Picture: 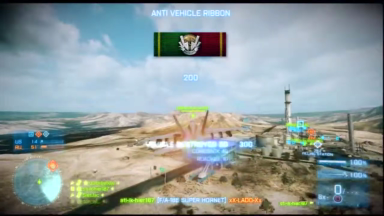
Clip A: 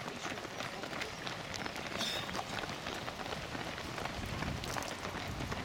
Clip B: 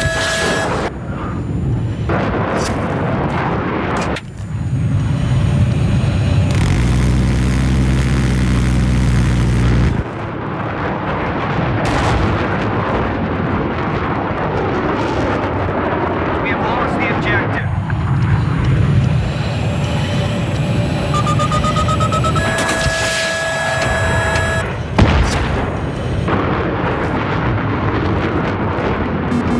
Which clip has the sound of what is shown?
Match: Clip B